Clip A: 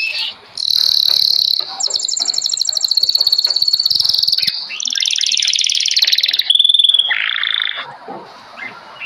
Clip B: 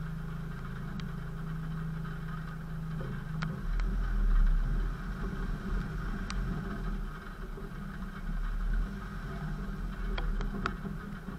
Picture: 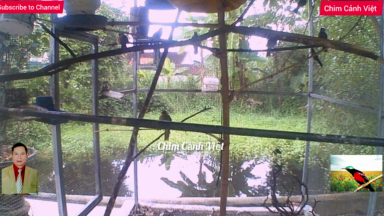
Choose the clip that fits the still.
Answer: A